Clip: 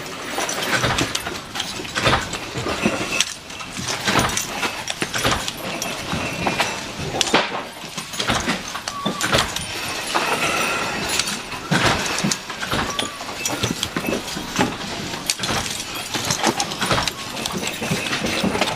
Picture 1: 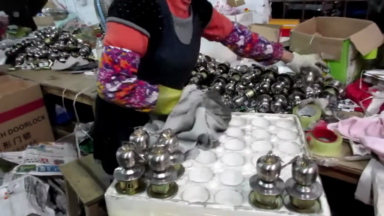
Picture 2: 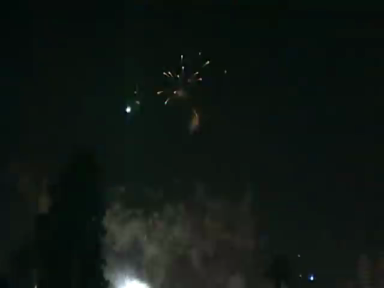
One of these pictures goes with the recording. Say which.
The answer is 1